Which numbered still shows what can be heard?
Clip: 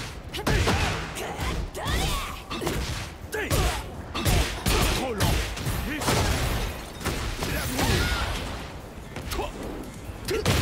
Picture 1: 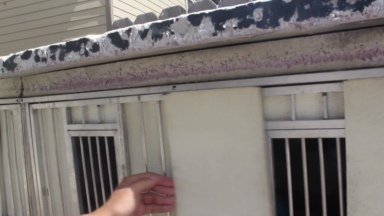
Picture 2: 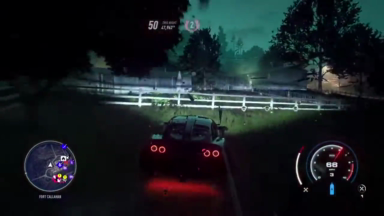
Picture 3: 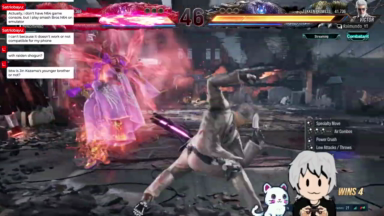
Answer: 3